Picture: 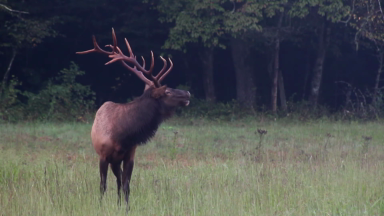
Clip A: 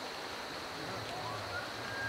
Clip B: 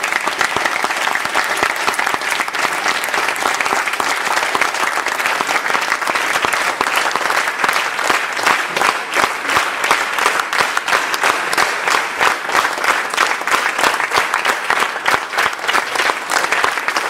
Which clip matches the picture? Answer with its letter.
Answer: A